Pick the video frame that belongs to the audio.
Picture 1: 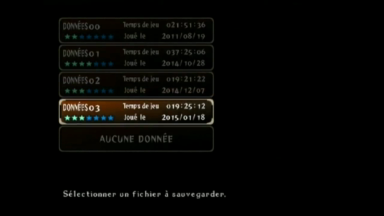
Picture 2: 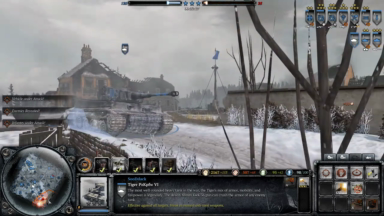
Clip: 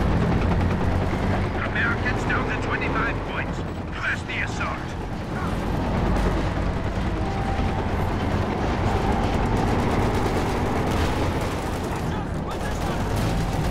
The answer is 2